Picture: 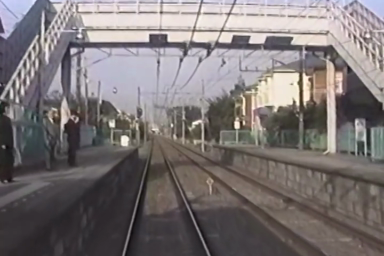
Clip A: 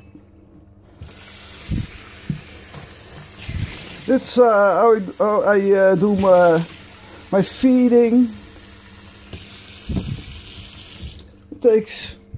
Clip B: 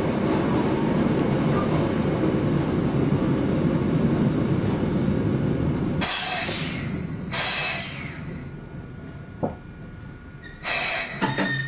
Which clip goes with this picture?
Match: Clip B